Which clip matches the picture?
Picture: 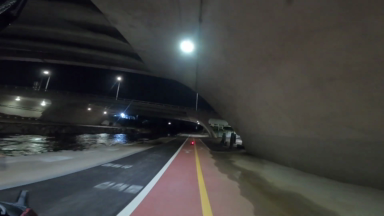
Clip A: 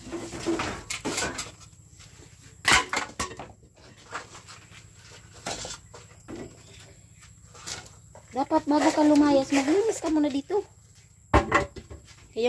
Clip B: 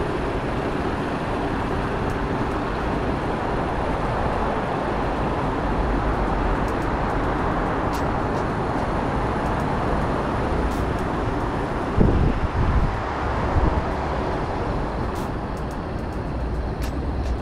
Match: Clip B